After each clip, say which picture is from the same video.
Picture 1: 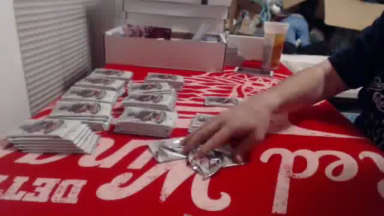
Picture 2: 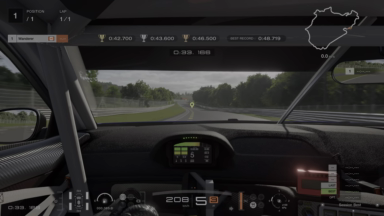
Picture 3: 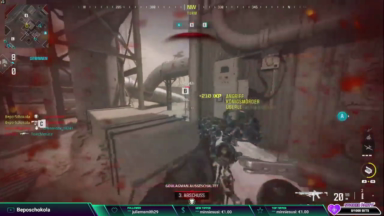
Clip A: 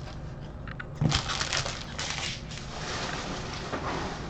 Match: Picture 1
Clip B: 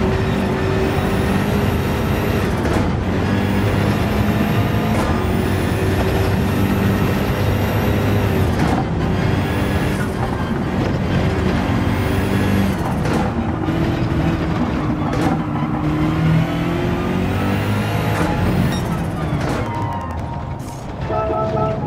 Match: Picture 2